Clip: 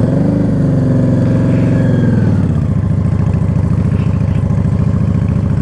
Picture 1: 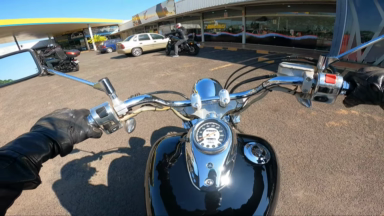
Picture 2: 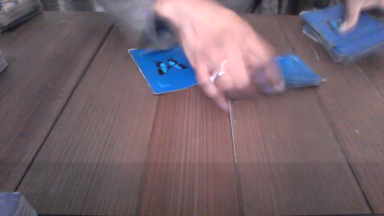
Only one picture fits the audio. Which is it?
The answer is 1